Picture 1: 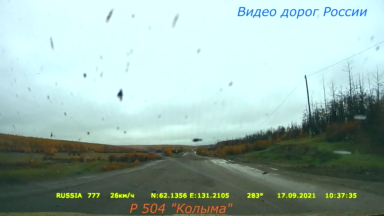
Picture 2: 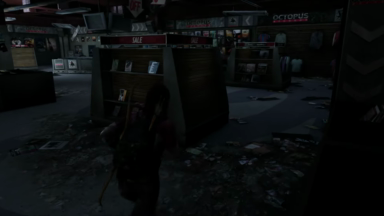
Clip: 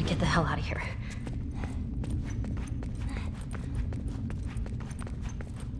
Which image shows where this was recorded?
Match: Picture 2